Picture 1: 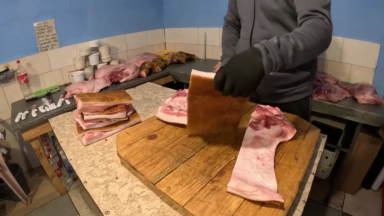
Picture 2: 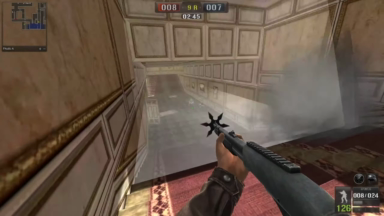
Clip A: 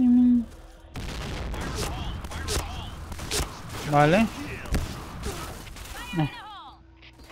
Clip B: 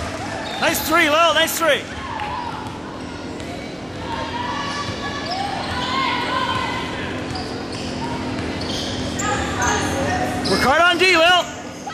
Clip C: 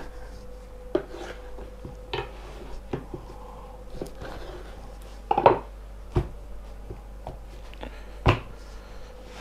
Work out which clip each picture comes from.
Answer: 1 C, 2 A